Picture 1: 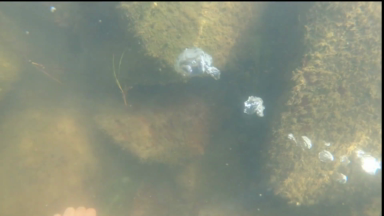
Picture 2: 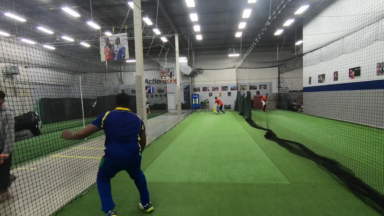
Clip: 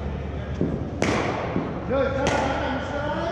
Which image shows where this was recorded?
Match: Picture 2